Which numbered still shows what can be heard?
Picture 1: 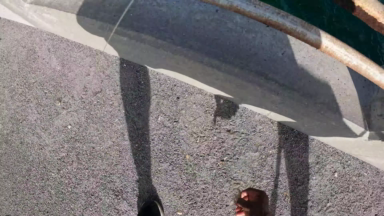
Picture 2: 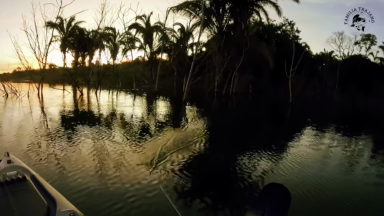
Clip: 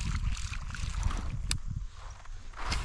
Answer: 2